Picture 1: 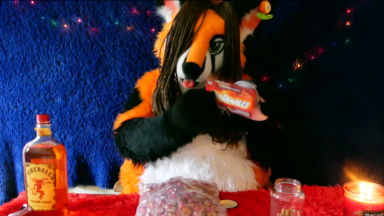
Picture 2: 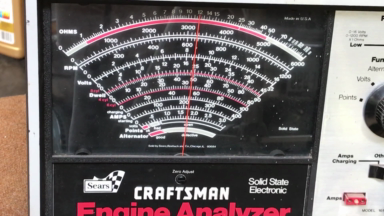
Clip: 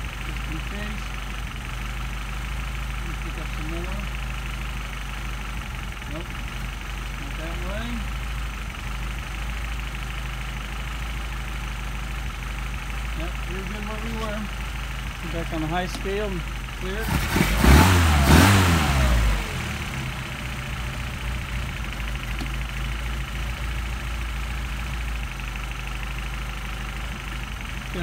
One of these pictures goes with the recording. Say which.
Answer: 2